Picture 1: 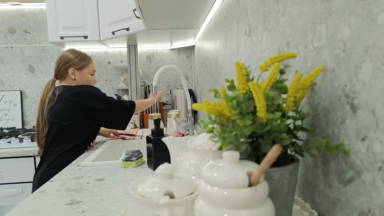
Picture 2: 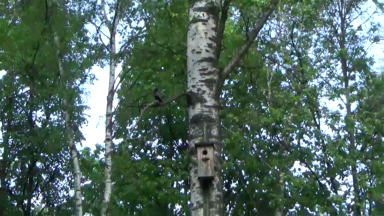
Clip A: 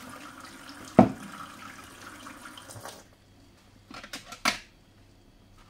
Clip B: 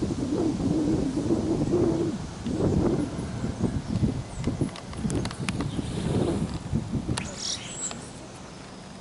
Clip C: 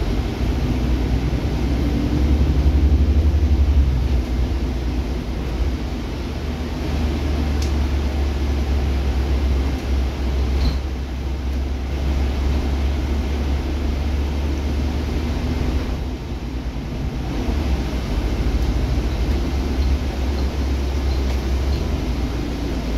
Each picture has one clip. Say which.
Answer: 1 A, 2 B